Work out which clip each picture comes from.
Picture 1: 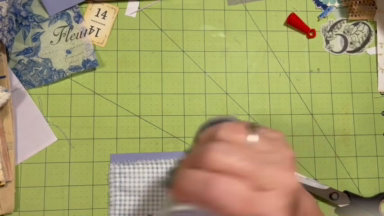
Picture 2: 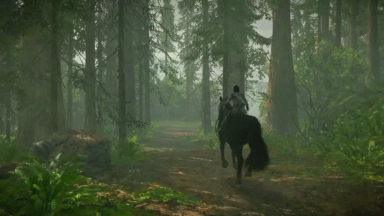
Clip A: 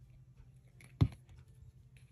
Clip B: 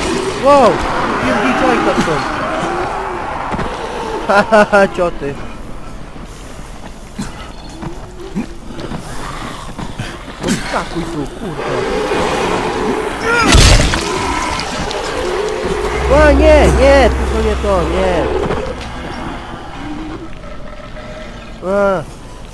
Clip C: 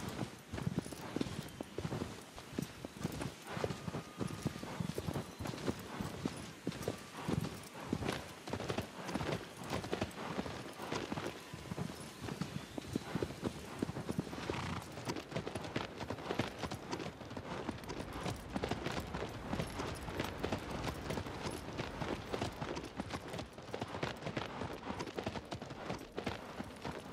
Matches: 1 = A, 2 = C